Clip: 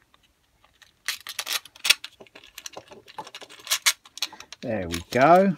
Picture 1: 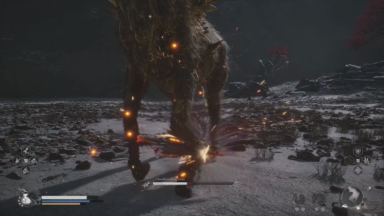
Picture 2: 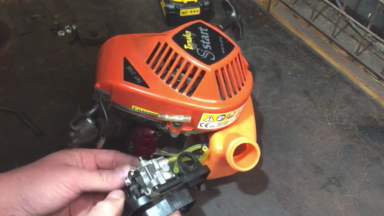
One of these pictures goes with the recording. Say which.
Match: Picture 2